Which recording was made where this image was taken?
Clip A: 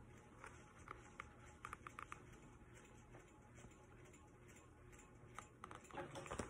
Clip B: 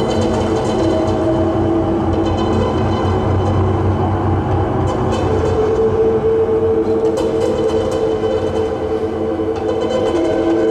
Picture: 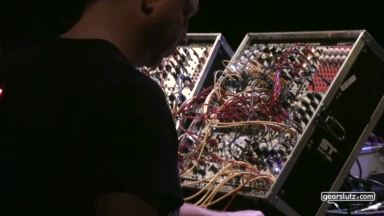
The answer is B